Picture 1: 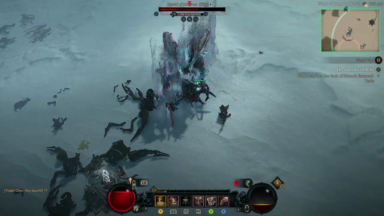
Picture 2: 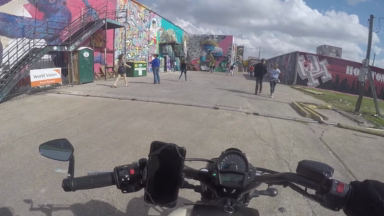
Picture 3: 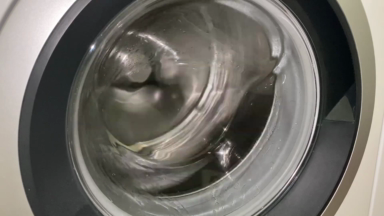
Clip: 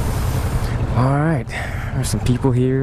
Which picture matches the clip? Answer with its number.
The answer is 2